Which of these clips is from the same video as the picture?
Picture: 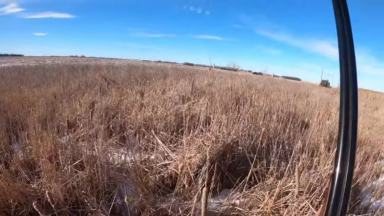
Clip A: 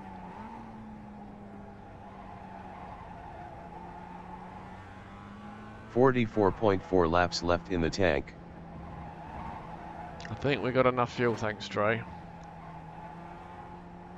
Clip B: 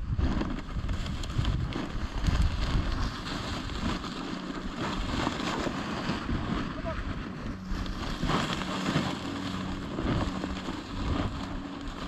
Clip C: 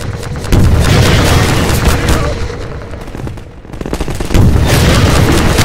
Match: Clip B